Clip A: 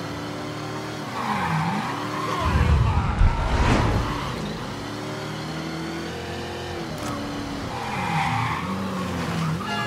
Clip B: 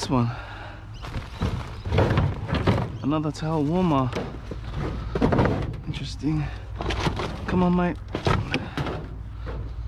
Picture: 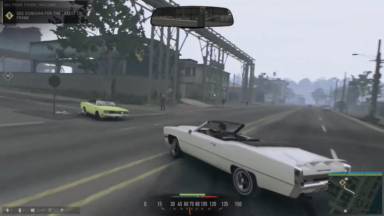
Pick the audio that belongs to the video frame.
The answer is A